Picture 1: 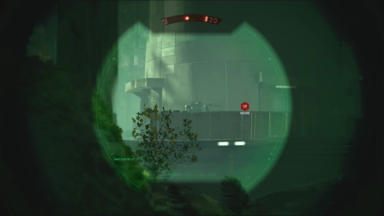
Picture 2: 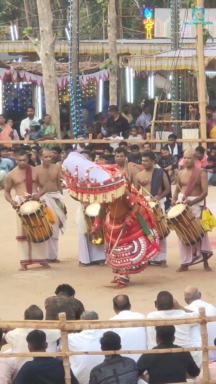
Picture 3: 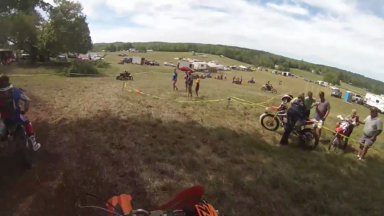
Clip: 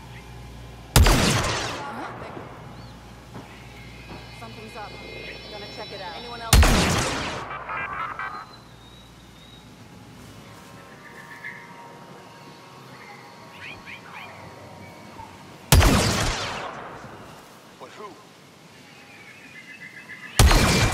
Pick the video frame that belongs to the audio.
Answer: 1